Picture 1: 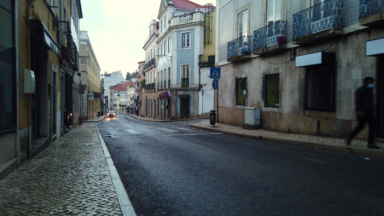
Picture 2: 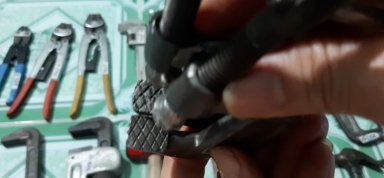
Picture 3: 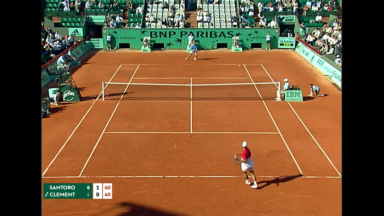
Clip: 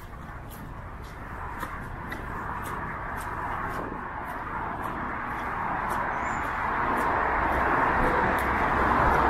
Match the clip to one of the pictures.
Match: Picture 1